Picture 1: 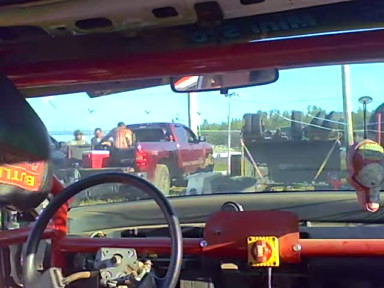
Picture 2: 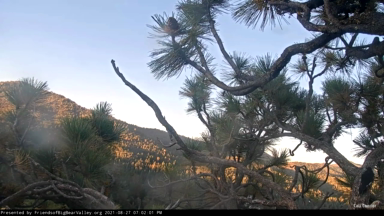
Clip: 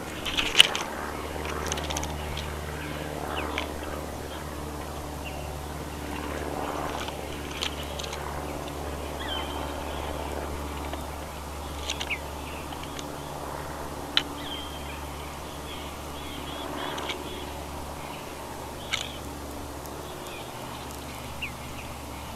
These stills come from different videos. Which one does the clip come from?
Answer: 2